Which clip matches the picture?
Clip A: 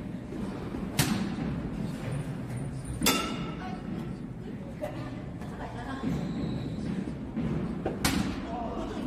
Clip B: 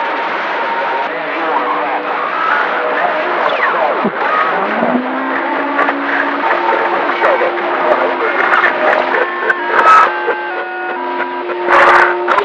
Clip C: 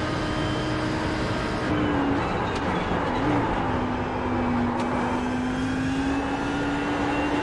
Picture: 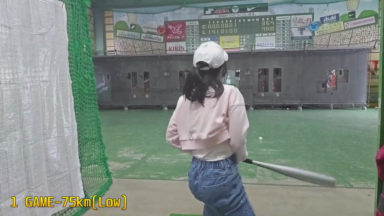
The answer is A